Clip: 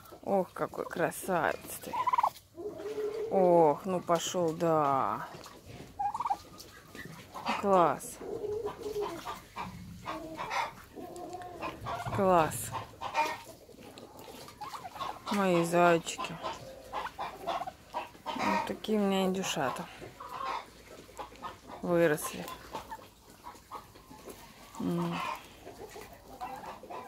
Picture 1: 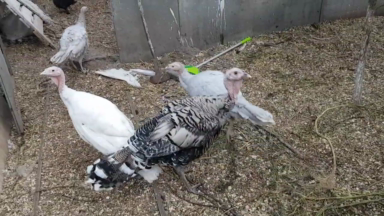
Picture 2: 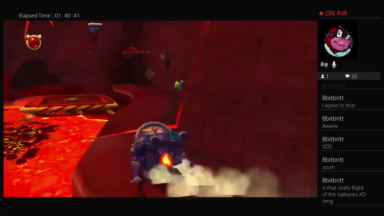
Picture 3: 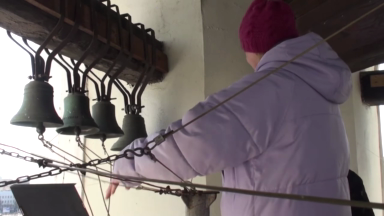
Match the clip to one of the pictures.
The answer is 1